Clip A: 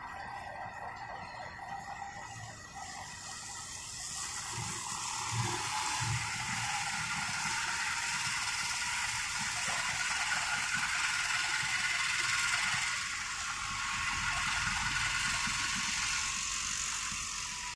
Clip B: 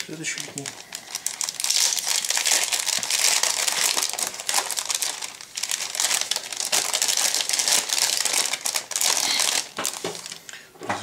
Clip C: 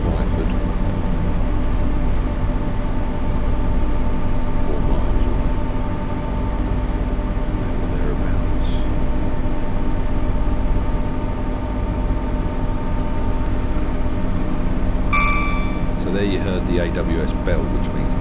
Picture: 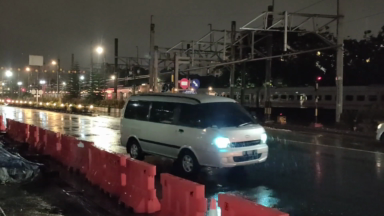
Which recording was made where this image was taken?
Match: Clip A